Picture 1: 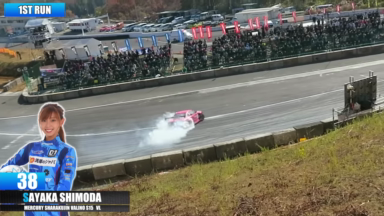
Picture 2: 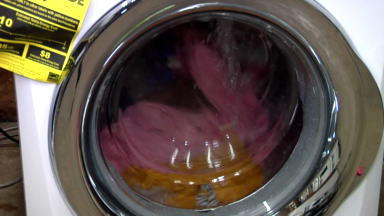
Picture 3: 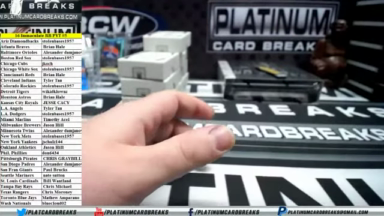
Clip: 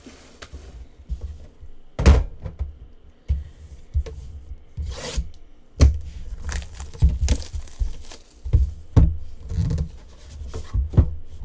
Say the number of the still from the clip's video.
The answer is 3